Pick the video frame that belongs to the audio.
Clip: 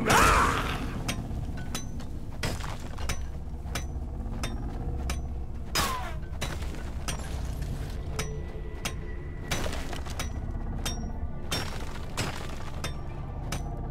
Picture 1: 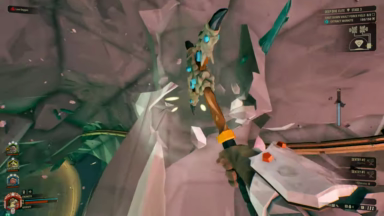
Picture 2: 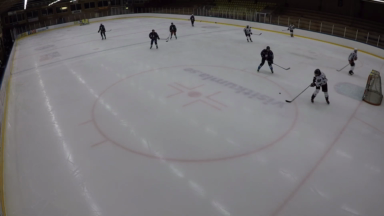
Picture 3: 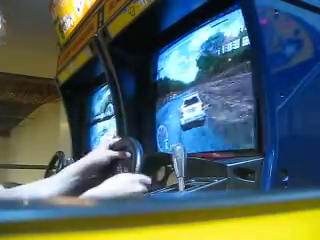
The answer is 1